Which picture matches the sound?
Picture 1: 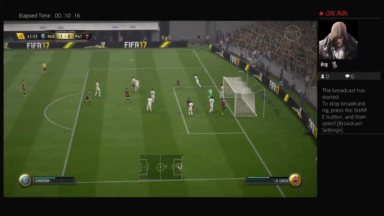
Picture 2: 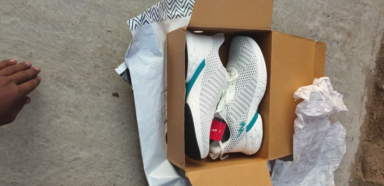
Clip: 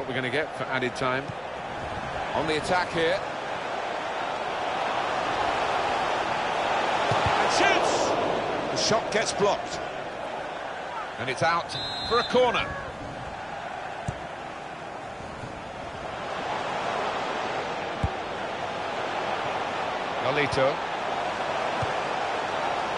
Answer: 1